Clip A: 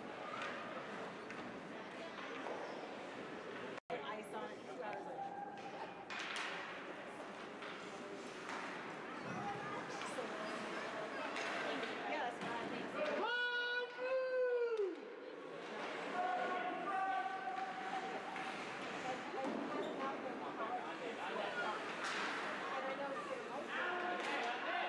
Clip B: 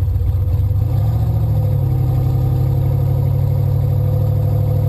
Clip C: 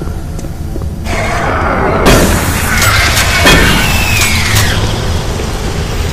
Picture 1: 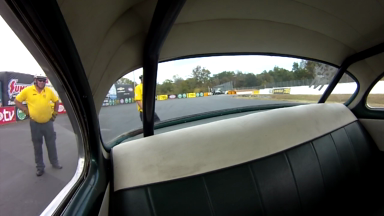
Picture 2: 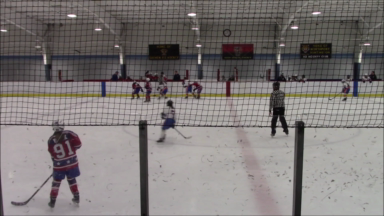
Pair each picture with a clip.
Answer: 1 B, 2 A